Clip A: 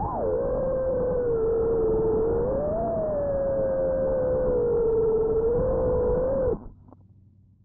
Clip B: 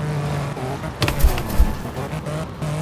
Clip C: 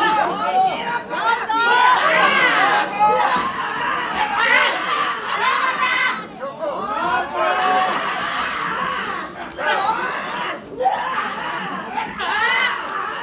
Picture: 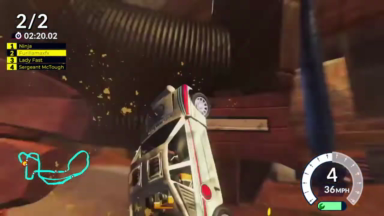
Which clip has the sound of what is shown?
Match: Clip B